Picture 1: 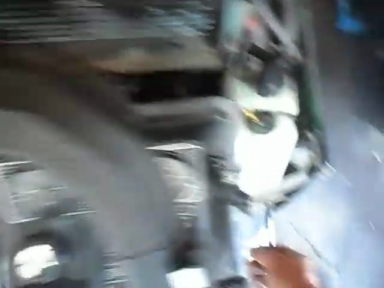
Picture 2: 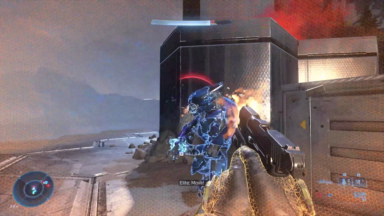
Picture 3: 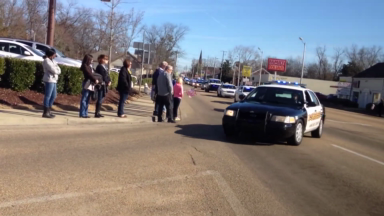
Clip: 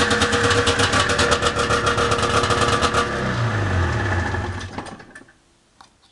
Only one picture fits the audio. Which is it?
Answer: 1